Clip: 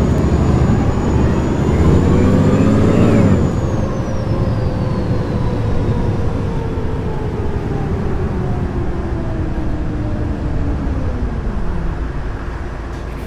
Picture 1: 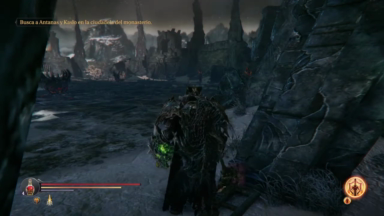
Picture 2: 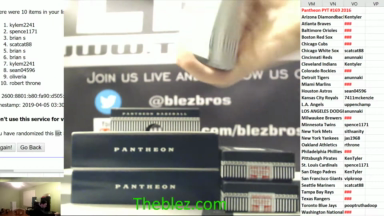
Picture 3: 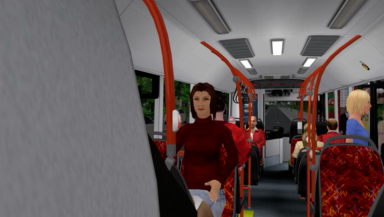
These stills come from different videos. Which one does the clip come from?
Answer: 3